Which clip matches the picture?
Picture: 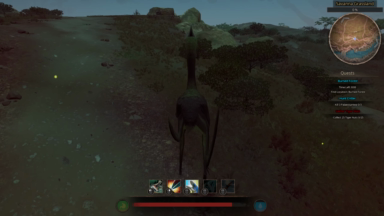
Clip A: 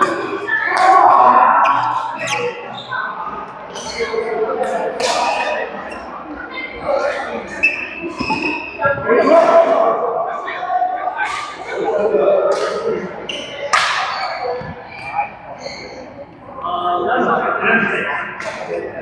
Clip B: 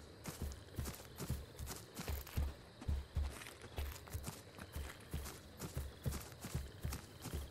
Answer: B